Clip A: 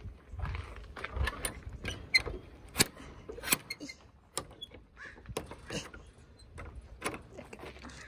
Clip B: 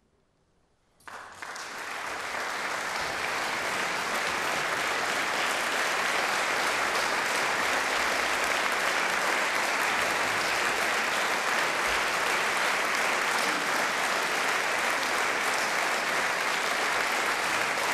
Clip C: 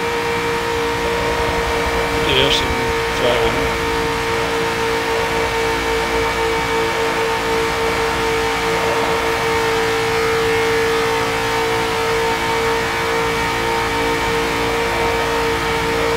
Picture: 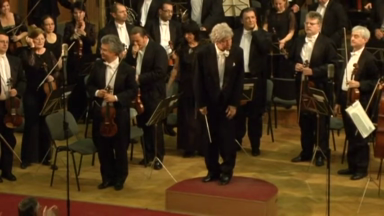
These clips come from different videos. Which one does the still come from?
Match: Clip B